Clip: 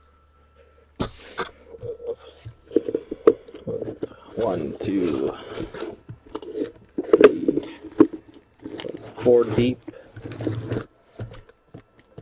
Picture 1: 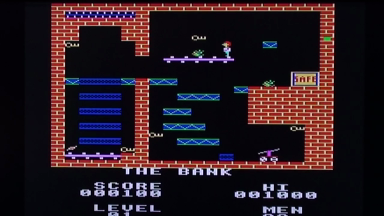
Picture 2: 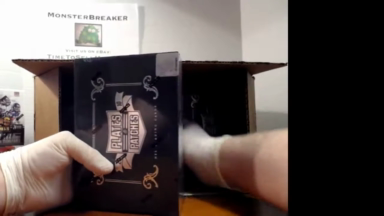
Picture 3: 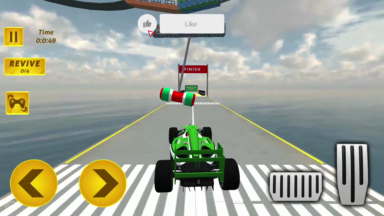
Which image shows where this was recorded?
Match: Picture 2